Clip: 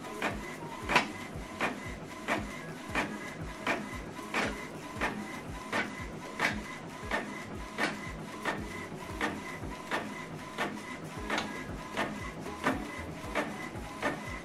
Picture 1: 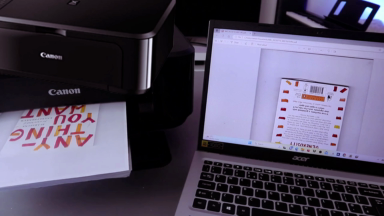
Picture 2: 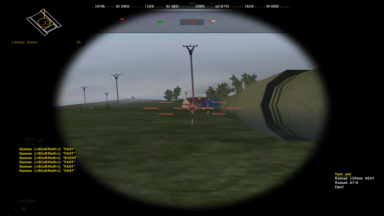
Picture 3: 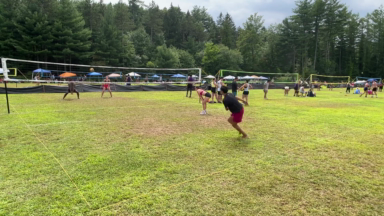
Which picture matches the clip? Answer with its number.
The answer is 1